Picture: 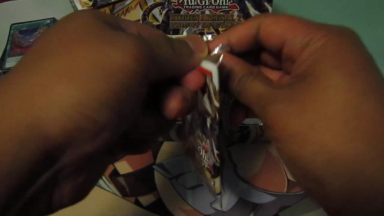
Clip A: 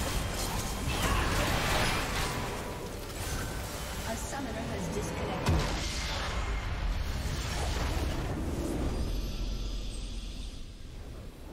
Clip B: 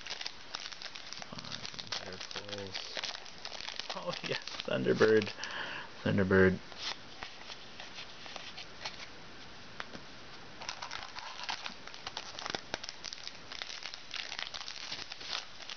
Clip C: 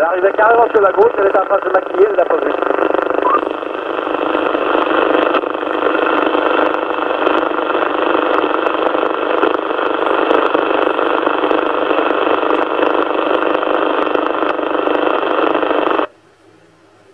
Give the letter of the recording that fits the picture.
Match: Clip B